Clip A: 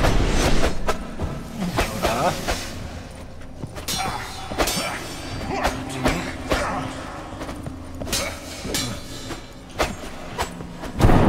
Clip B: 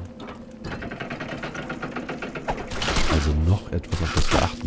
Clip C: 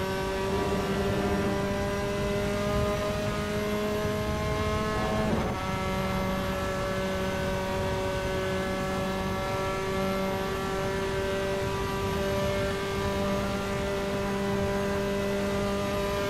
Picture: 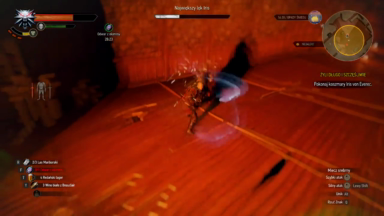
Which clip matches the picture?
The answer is A